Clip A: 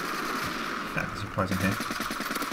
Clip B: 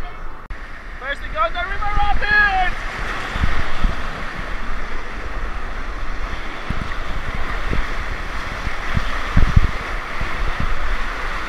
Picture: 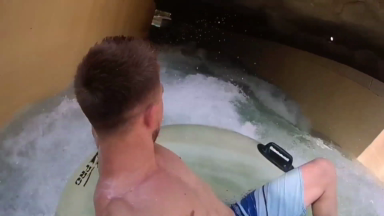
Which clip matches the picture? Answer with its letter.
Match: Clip B